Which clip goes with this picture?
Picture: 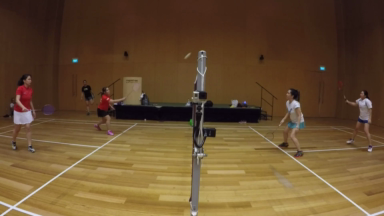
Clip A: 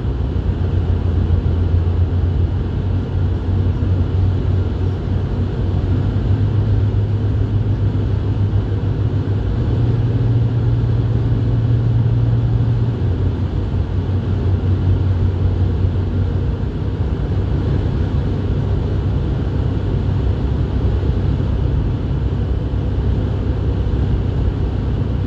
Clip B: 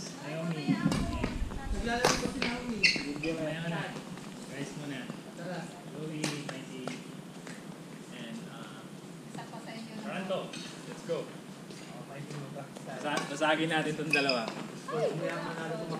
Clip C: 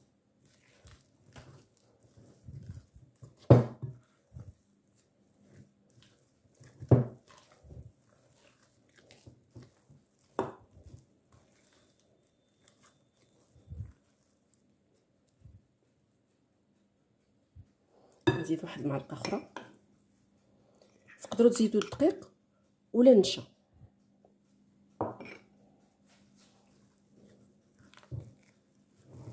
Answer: B